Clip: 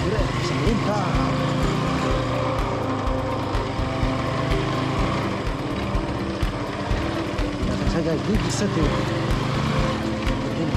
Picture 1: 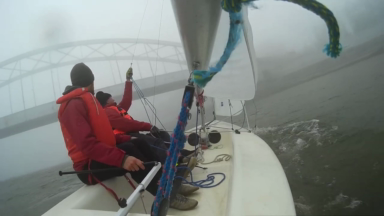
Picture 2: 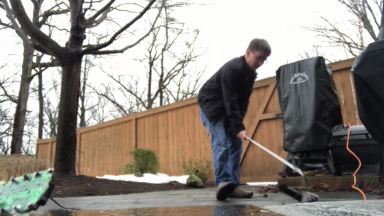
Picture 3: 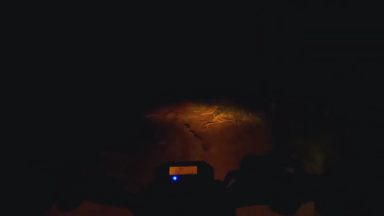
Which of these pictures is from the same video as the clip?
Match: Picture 3